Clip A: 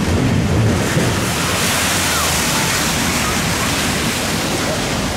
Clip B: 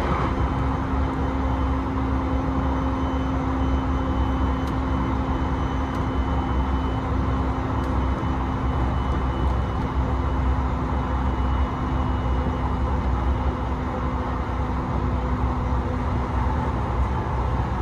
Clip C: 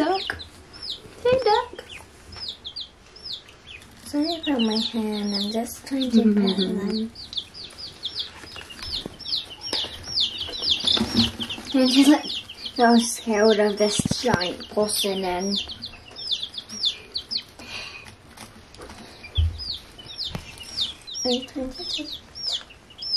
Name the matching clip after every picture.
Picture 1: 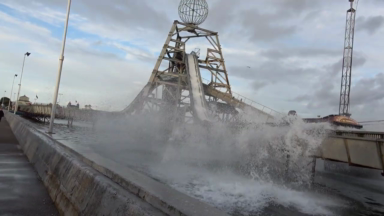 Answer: A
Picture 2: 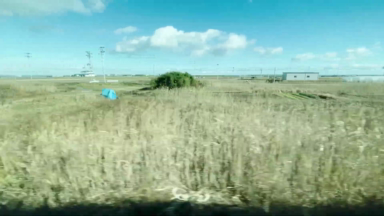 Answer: B